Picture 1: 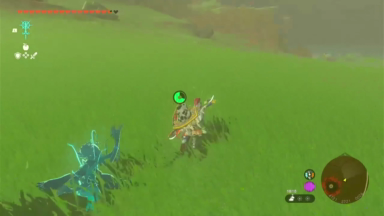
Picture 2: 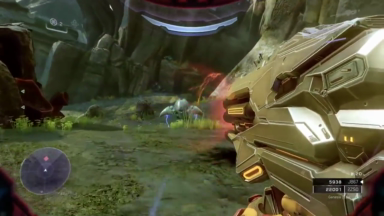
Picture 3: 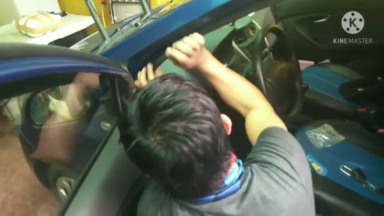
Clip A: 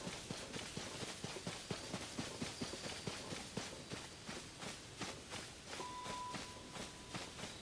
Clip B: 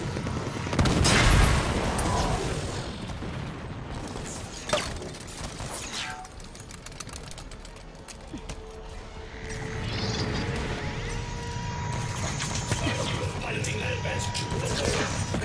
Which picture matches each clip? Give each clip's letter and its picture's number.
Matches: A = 1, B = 2